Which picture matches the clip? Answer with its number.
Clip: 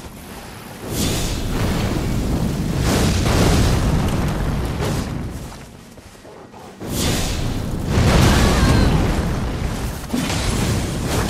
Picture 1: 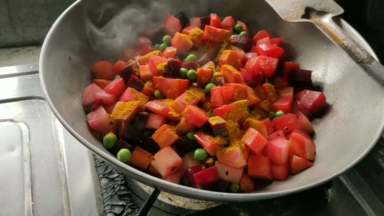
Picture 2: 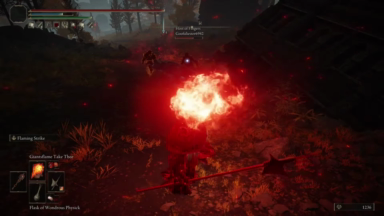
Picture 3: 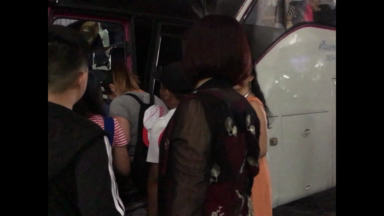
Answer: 2